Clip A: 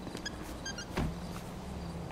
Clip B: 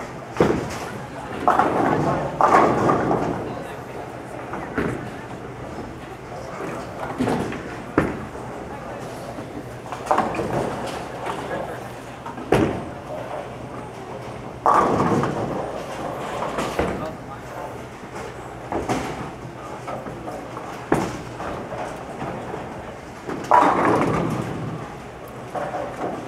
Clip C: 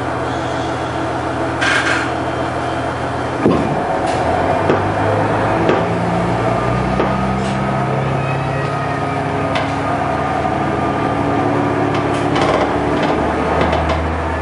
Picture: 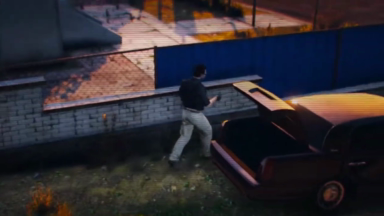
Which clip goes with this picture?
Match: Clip A